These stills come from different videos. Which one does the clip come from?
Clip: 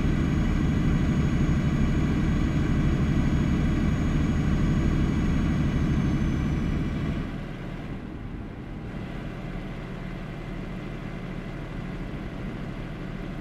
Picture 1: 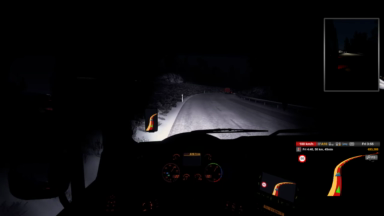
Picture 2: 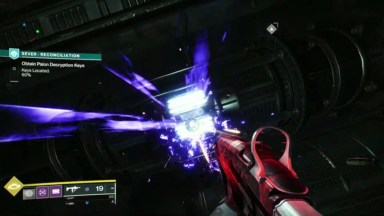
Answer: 1